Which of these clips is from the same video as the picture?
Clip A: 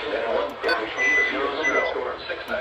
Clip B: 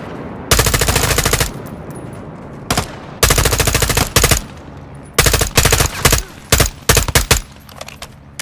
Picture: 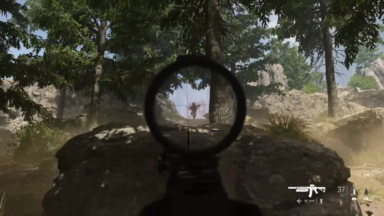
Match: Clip B